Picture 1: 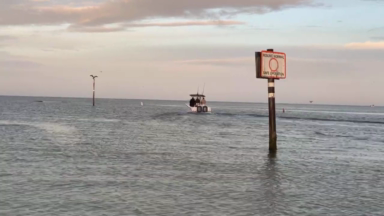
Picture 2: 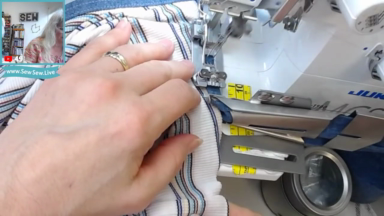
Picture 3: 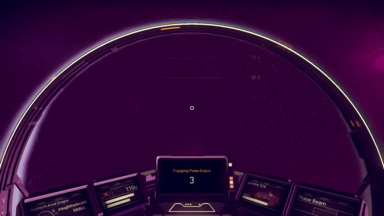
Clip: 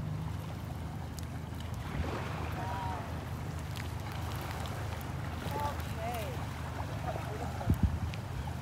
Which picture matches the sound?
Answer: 1